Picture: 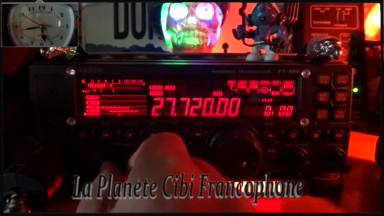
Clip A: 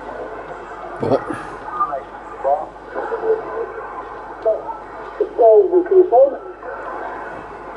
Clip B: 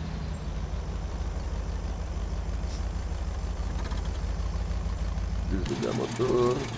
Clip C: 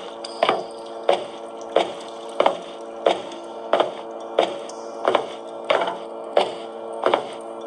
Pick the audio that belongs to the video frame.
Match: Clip A